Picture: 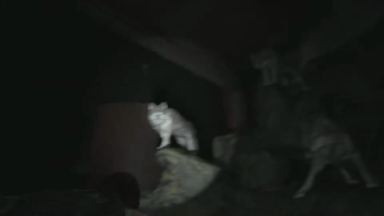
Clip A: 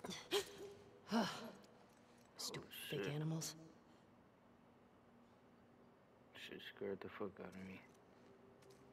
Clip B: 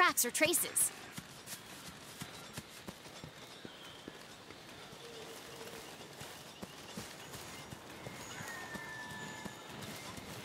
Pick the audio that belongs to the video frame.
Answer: A